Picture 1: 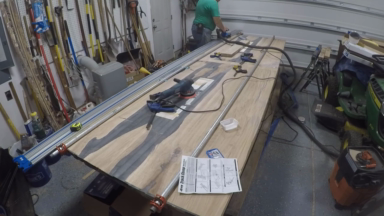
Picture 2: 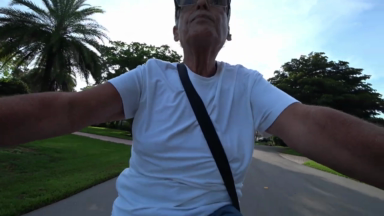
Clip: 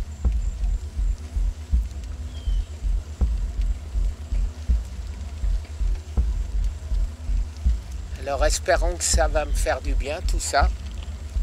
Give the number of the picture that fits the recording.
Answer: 2